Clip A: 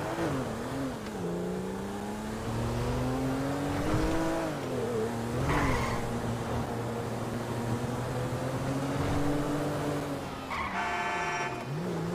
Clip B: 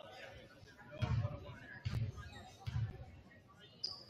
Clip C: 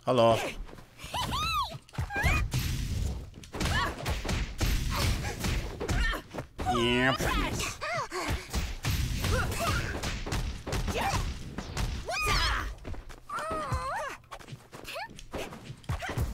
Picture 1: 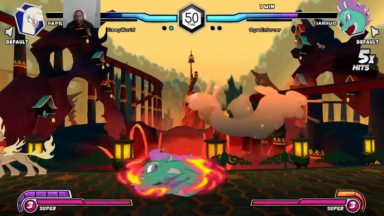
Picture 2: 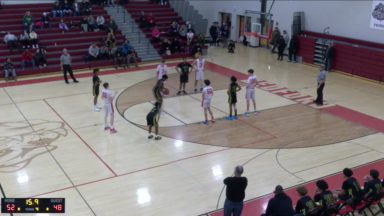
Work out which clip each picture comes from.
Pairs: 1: C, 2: B